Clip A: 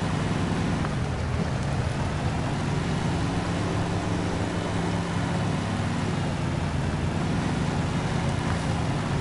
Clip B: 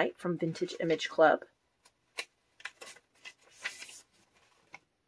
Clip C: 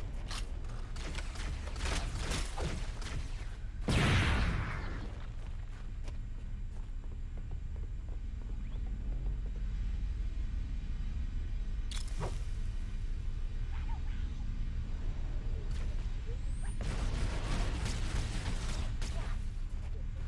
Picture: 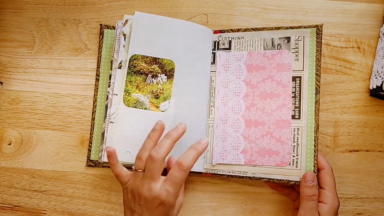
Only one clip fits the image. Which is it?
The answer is B